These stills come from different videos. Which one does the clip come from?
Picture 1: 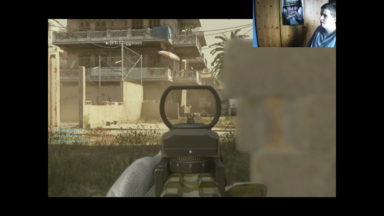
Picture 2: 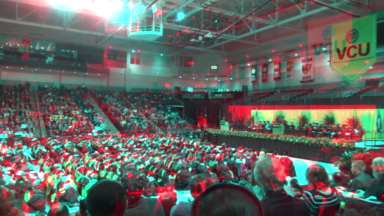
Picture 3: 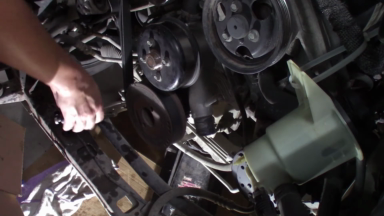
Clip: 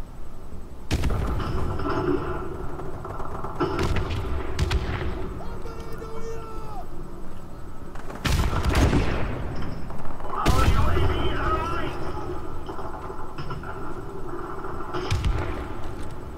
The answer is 1